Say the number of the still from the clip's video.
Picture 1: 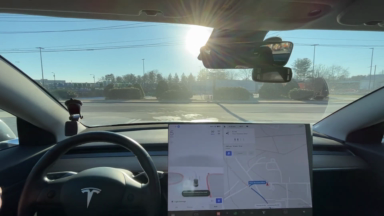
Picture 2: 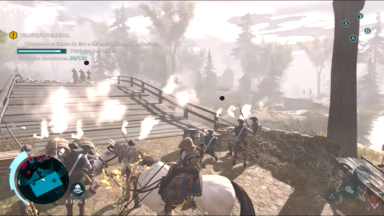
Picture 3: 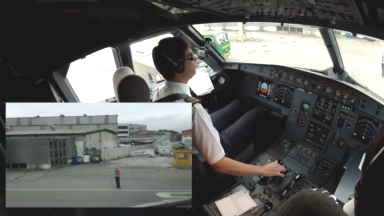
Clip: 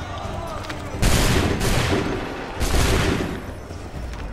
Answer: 2